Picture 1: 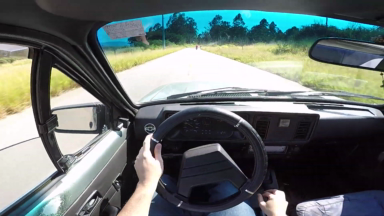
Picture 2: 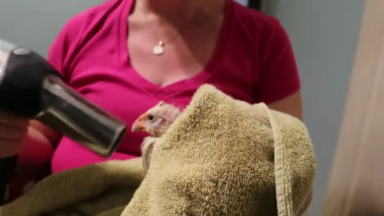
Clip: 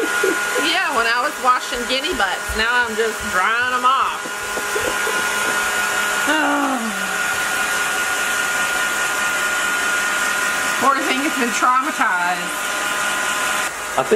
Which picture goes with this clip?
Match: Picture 2